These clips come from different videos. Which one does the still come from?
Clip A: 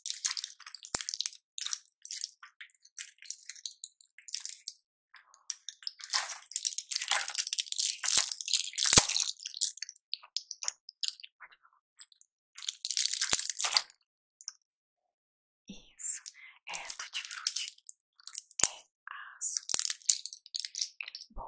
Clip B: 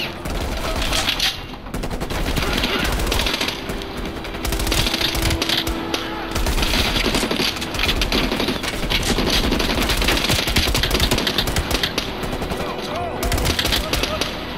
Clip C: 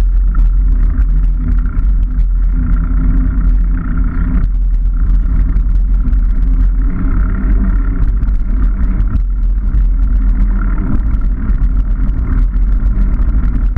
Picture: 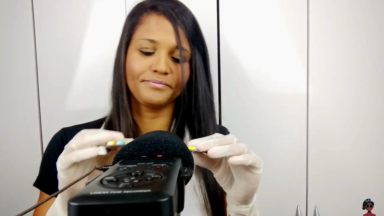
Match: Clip A